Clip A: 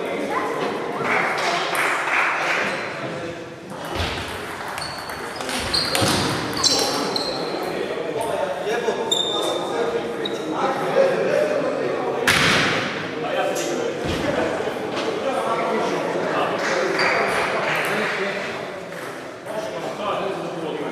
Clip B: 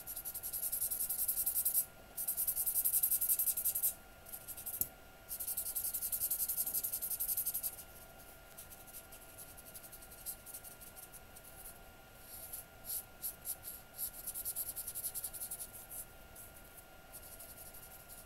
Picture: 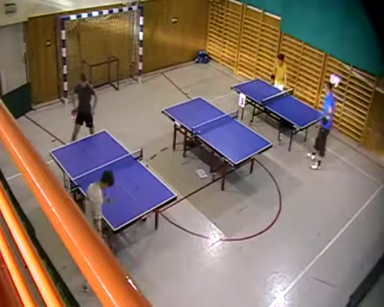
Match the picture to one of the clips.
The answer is A